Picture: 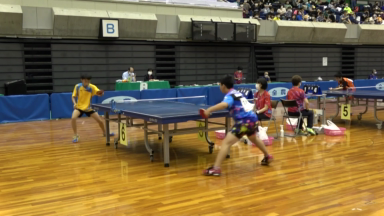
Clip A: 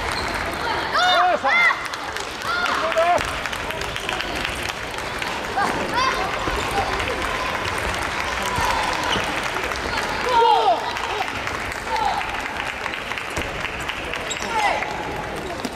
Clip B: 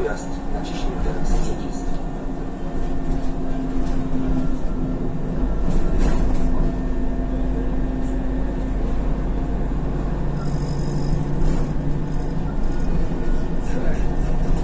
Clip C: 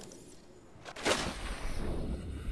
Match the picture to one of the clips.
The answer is A